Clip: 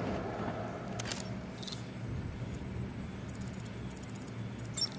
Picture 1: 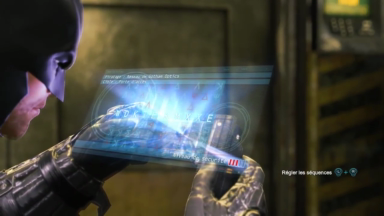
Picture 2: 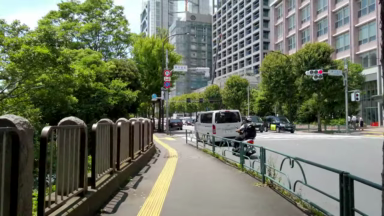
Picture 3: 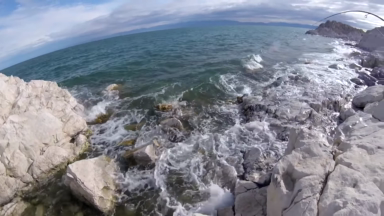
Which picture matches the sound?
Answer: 1